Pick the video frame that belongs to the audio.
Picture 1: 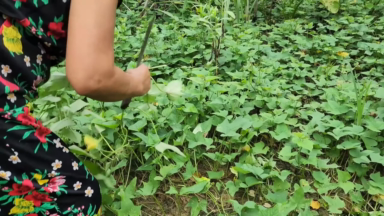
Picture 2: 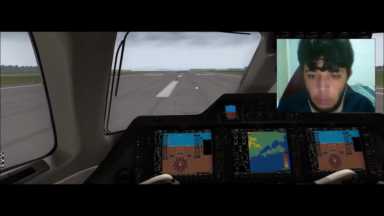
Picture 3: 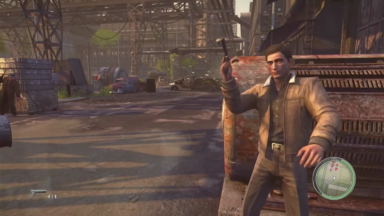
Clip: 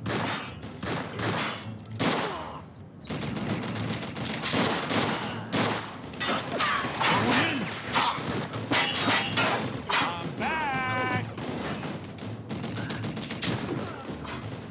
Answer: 3